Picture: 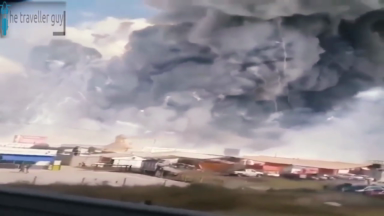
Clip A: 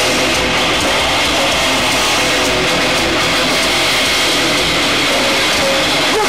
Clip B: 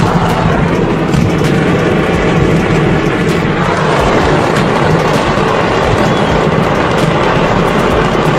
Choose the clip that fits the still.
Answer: B